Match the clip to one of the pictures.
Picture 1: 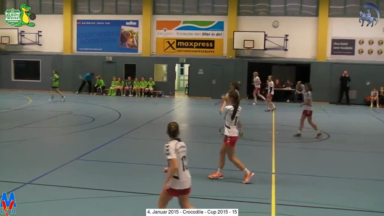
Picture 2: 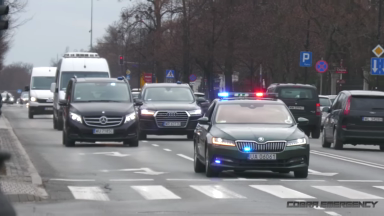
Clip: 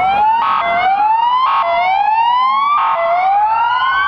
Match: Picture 2